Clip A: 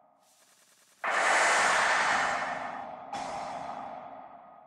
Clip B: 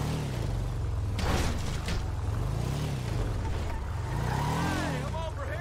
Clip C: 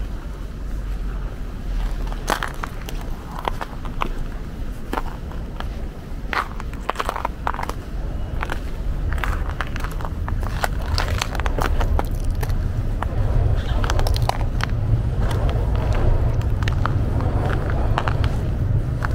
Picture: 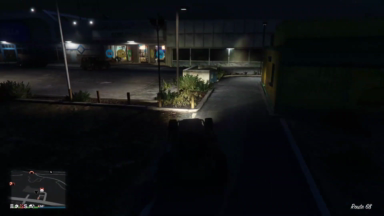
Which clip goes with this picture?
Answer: B